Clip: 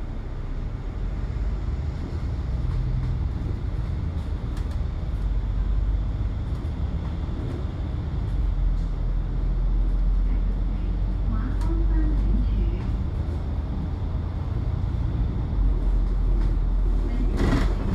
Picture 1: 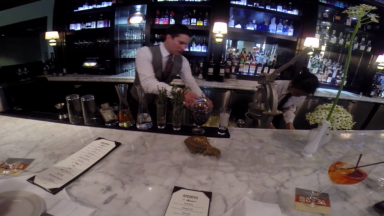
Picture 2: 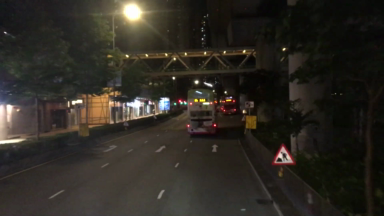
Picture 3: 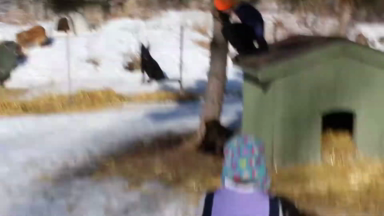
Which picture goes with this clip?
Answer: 2